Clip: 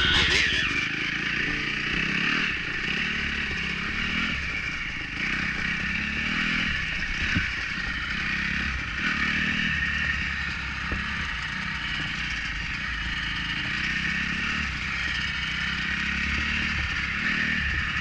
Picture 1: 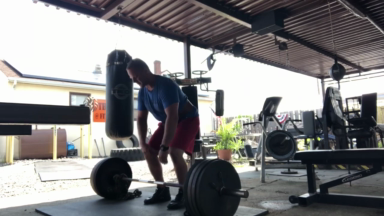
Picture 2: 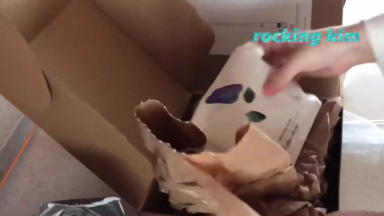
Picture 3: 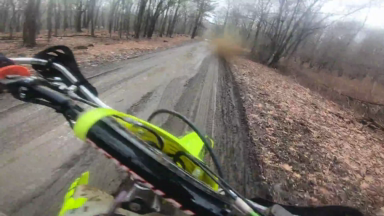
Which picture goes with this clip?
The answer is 3